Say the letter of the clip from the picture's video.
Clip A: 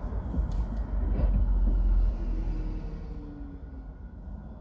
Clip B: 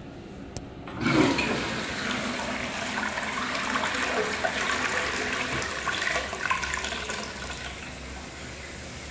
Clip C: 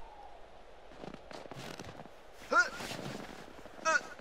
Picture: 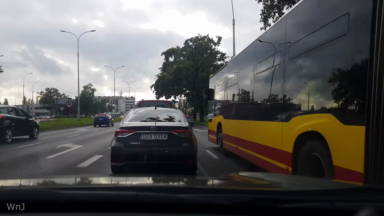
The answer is A